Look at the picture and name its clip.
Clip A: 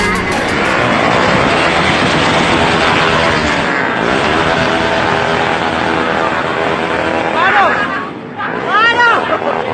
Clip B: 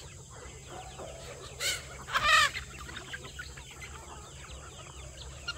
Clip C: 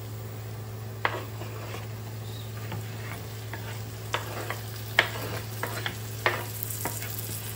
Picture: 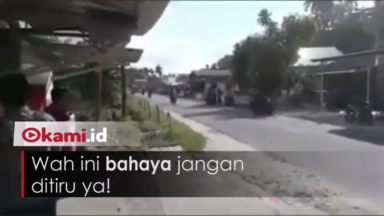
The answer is A